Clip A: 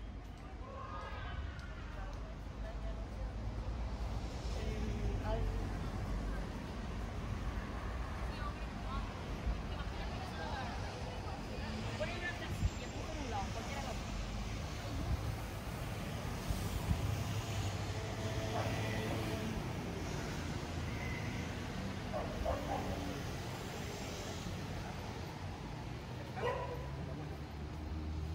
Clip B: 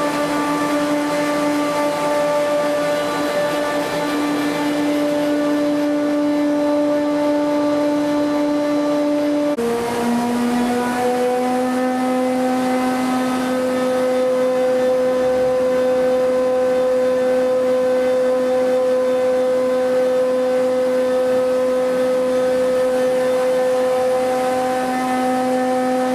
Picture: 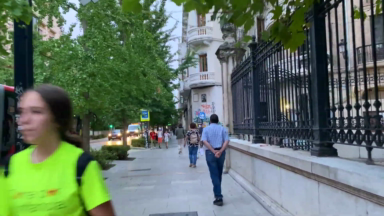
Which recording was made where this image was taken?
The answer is A